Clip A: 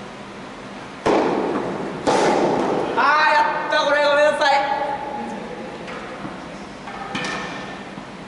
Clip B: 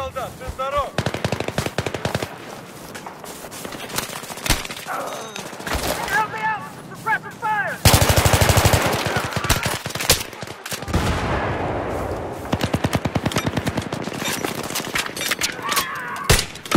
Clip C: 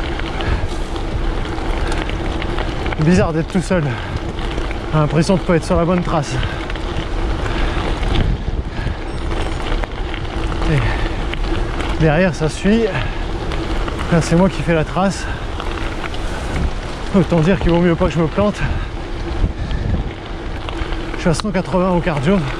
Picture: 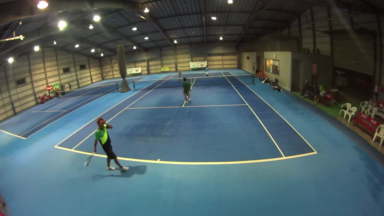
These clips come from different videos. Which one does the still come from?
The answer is A